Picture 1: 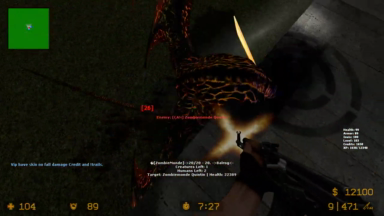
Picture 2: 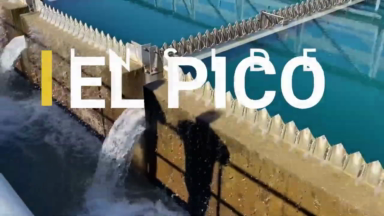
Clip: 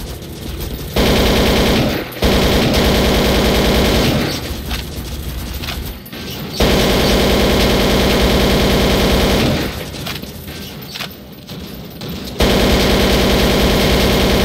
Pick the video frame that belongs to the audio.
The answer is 1